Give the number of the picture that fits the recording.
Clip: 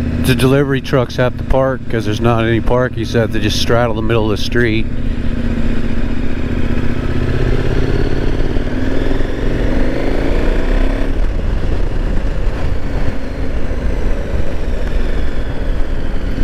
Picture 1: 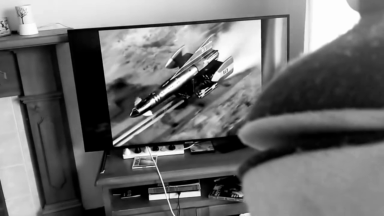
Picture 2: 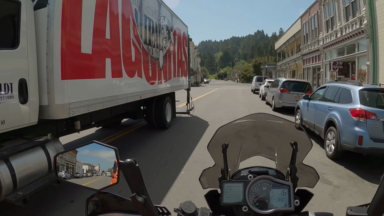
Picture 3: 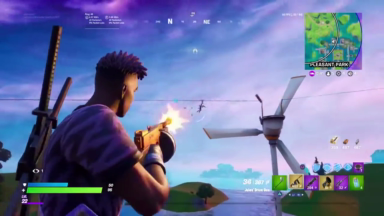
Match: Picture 2